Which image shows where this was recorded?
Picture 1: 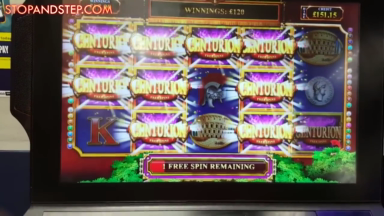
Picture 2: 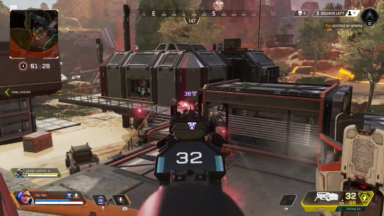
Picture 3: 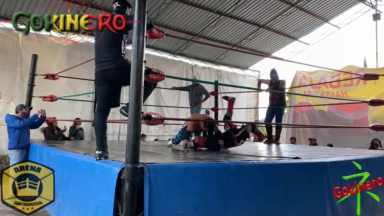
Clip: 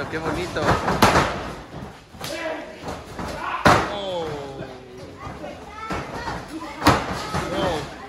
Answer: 3